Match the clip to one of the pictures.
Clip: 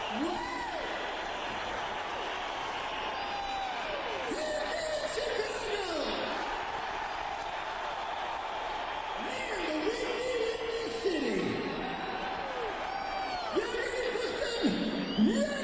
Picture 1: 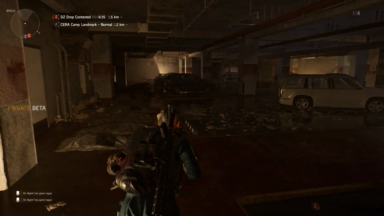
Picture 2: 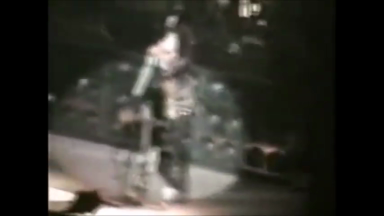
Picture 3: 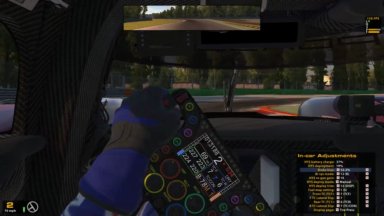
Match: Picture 2